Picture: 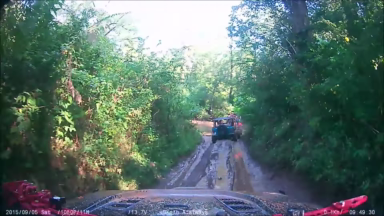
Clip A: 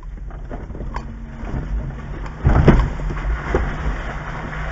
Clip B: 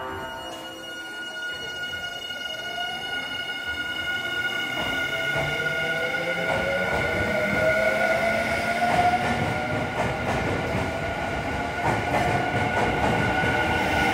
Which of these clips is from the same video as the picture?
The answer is A